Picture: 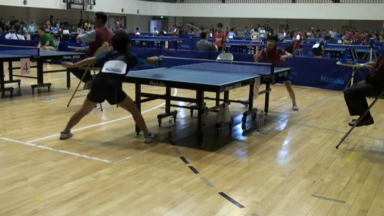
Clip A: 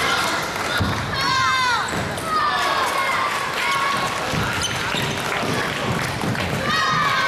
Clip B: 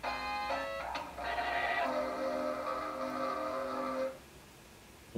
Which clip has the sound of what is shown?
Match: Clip A